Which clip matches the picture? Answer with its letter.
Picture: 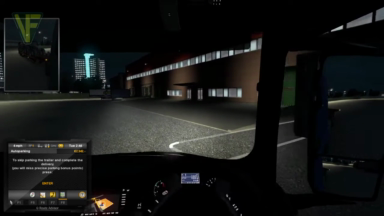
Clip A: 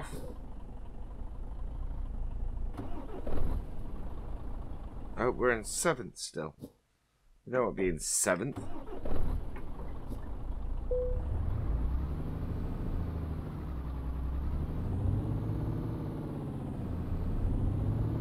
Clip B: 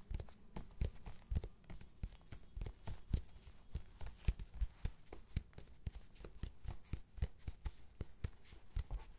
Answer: A